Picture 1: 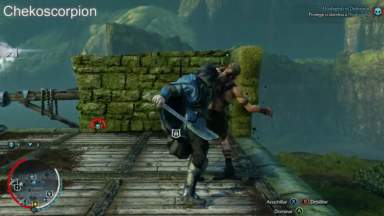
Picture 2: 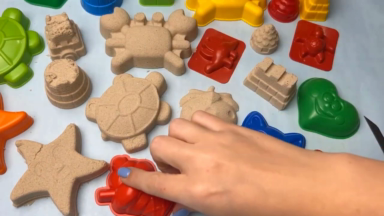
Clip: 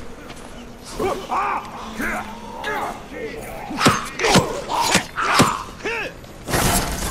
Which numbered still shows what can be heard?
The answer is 1